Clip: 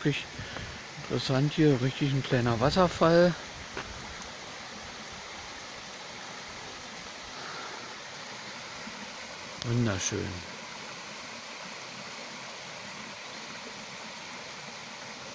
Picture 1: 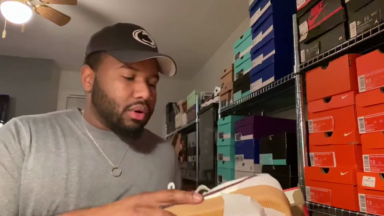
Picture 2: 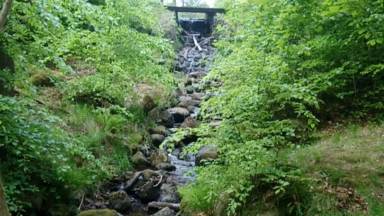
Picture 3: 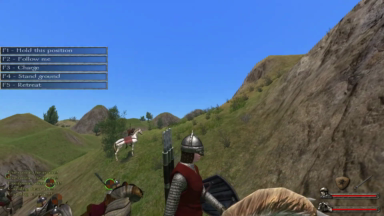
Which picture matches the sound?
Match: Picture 2